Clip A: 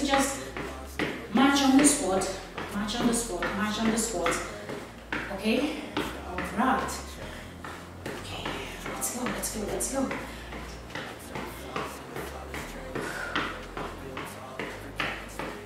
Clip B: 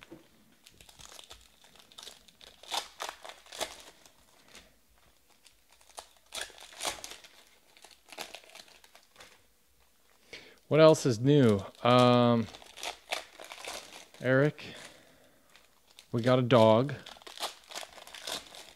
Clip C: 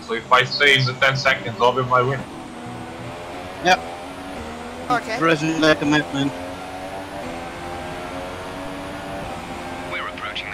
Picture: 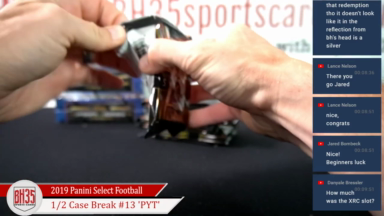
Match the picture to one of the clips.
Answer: B